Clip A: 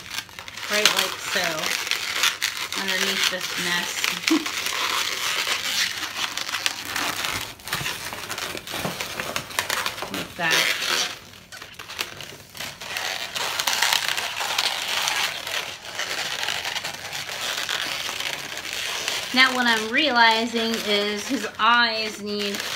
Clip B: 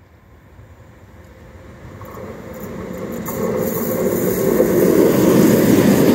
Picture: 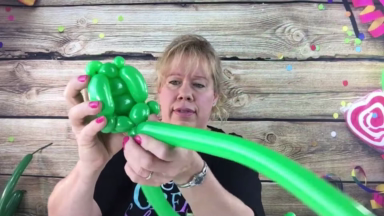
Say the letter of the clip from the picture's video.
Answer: A